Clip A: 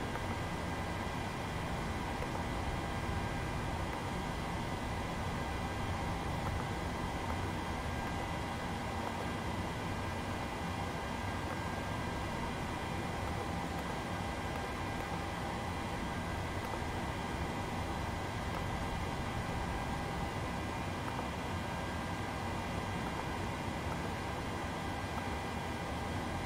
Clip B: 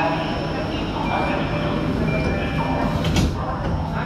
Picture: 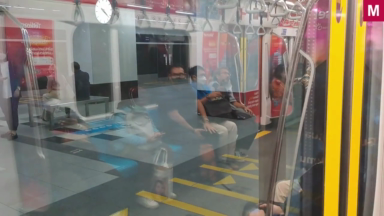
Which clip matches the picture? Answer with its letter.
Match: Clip B